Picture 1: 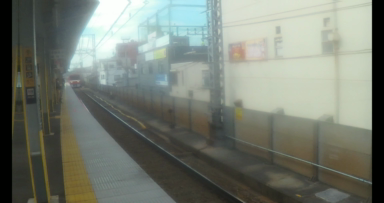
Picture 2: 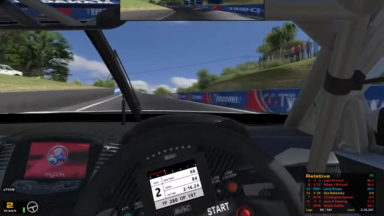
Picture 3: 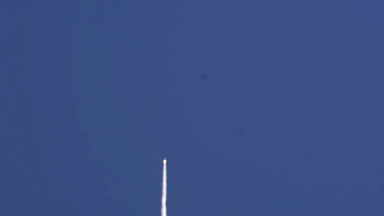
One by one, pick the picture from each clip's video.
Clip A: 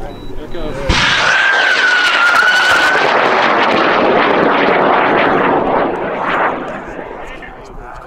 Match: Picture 3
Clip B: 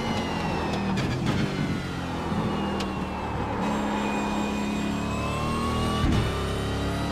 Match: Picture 2